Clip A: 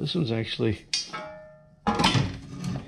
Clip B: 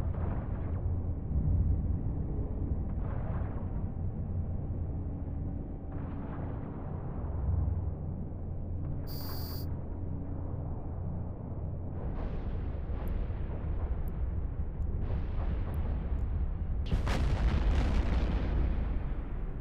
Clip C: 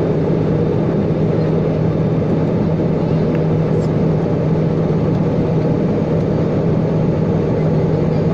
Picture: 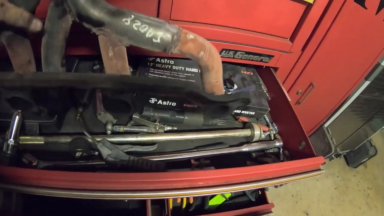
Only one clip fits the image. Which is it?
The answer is A